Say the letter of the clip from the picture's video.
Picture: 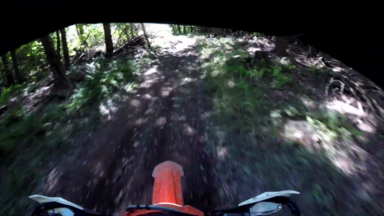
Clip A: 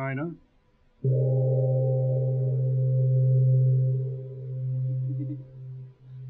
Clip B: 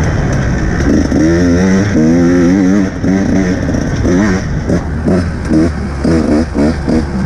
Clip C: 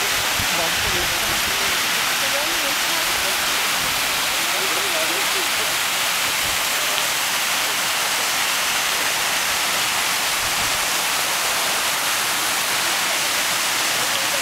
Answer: B